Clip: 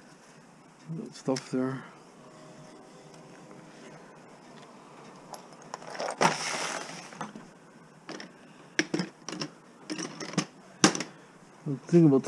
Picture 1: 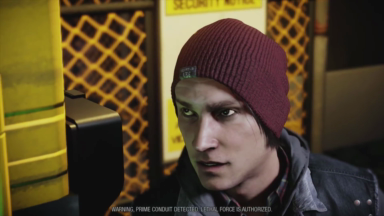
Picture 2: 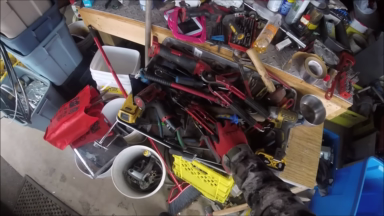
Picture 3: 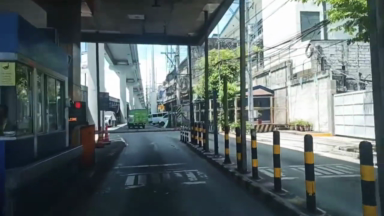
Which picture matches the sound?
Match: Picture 2